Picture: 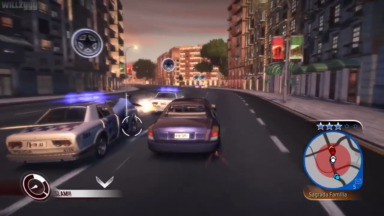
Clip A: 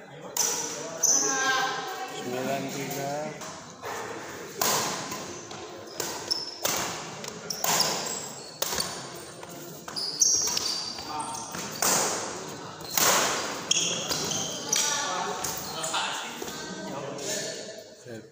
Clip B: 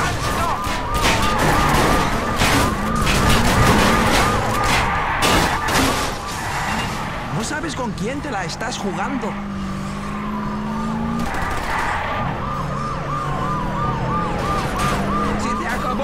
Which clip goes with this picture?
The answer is B